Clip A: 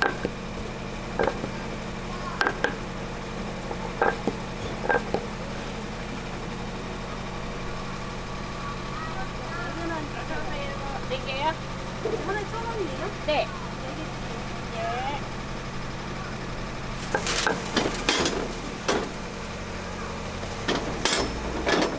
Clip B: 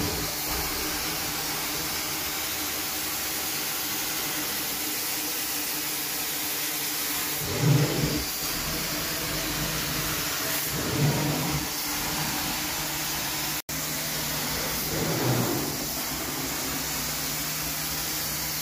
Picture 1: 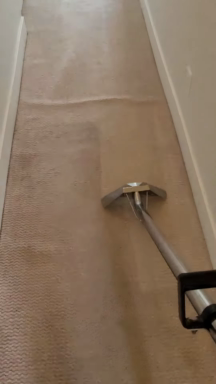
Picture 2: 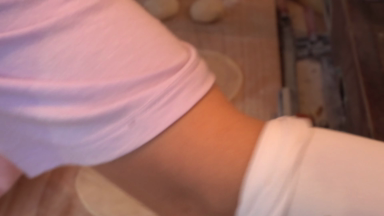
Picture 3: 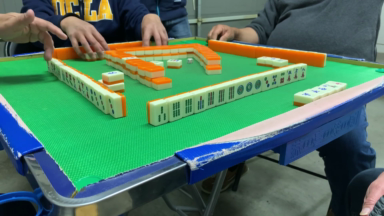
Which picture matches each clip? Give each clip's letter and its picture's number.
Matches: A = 2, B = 1